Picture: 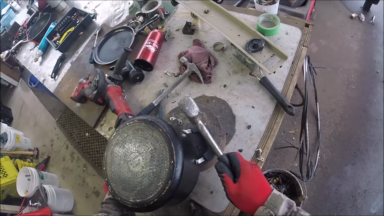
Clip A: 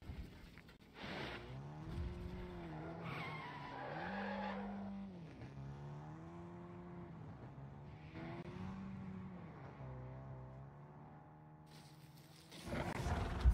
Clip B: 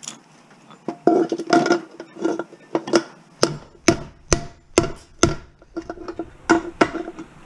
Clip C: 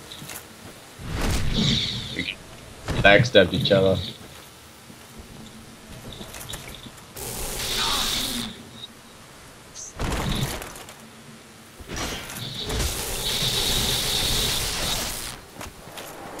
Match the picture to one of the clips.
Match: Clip B